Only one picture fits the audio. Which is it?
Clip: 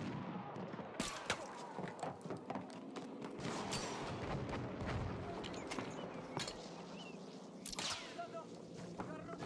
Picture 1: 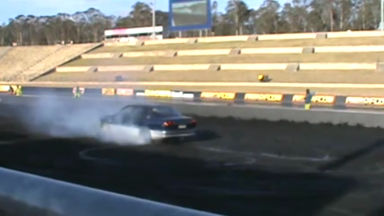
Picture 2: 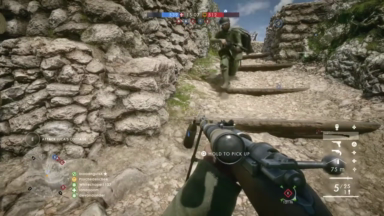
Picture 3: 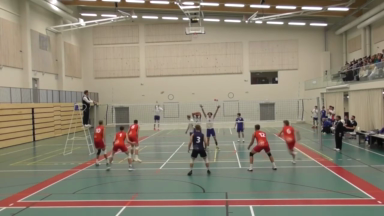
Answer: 2